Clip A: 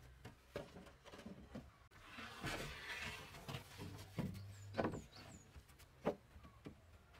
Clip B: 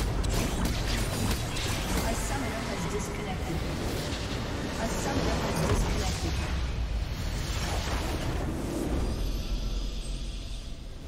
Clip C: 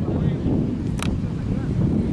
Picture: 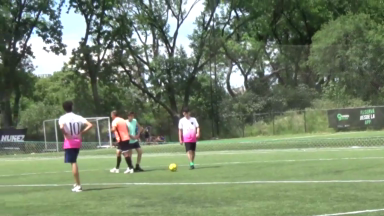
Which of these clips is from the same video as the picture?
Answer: C